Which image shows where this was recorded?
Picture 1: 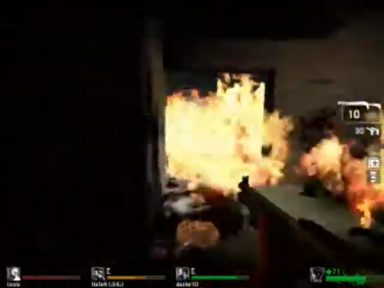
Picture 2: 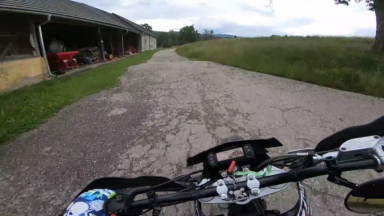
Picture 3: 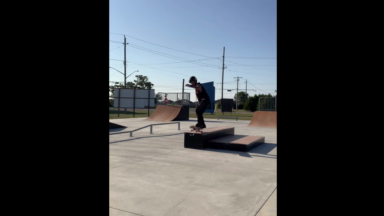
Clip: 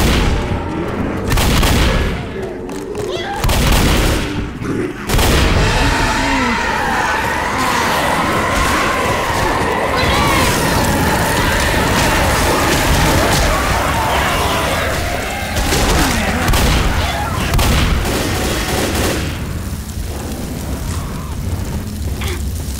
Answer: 1